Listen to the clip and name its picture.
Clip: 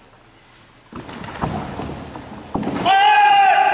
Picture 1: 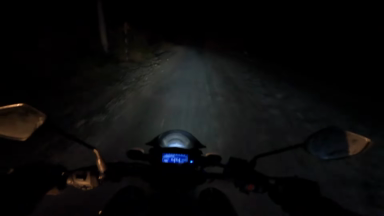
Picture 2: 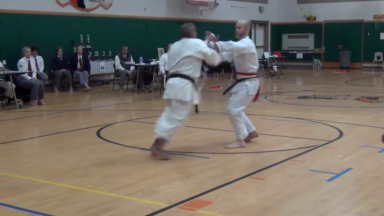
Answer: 2